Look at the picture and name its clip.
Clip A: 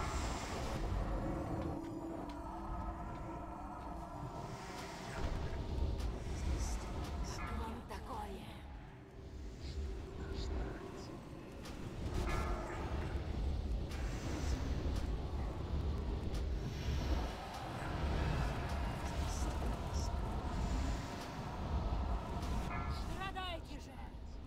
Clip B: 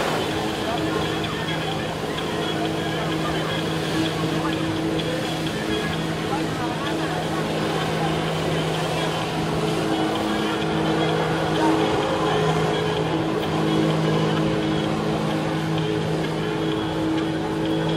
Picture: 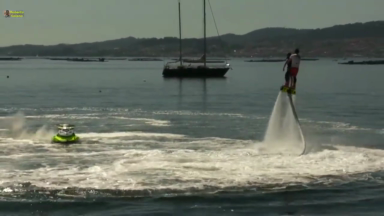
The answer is B